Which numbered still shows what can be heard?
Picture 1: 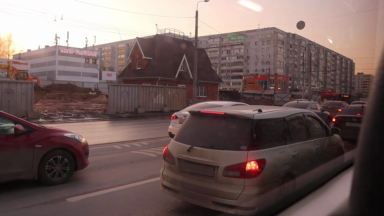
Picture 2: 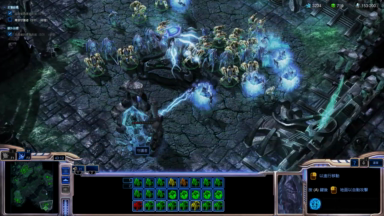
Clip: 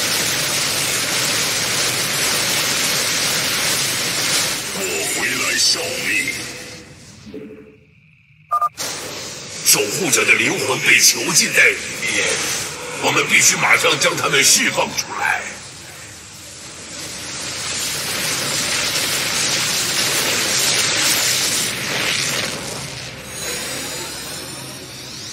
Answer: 2